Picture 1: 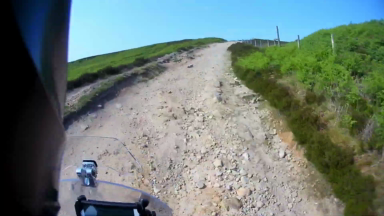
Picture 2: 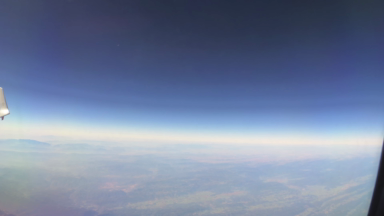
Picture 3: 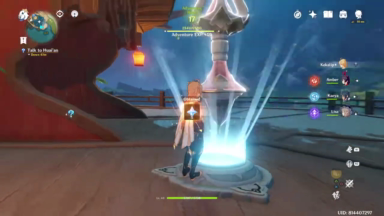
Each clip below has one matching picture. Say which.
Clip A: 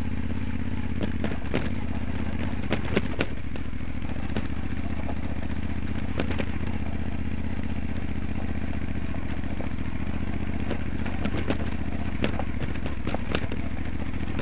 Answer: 1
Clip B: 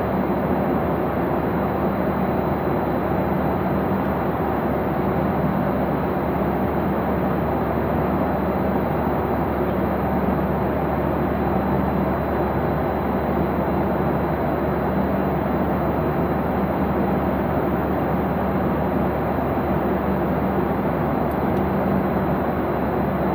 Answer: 2